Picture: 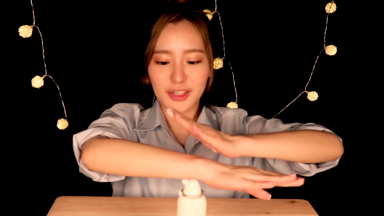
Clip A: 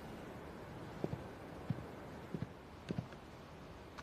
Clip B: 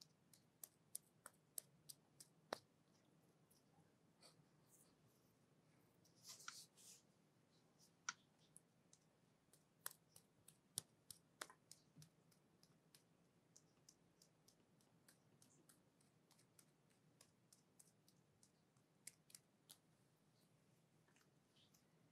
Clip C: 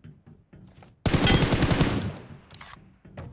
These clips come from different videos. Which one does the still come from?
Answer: B